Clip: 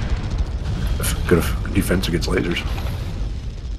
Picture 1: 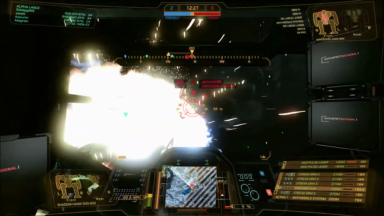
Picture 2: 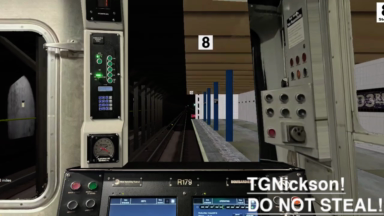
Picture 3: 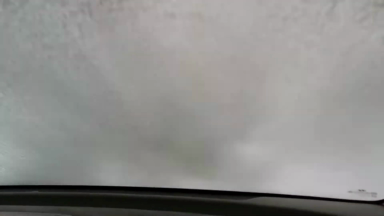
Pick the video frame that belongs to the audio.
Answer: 1